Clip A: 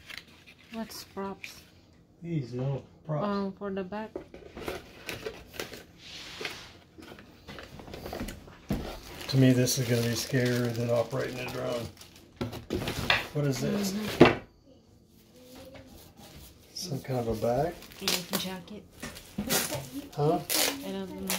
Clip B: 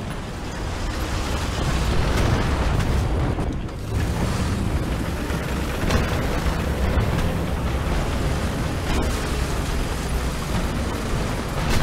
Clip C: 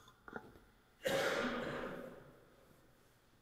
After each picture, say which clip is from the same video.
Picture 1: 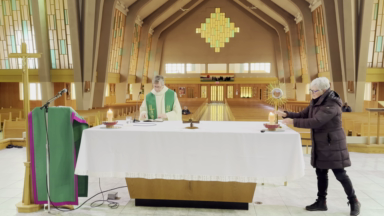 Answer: C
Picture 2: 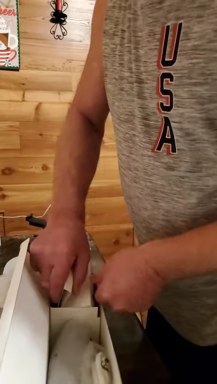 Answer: A